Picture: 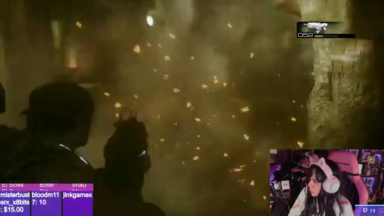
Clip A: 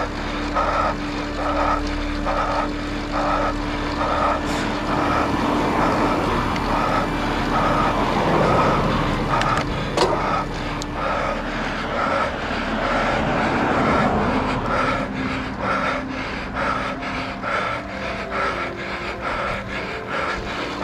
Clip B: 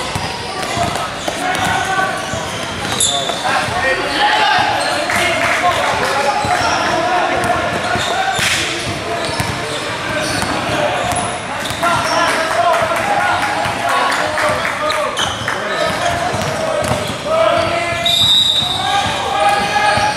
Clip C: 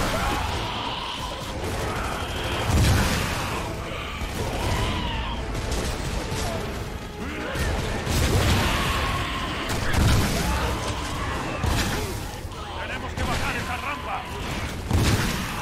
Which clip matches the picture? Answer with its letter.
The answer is C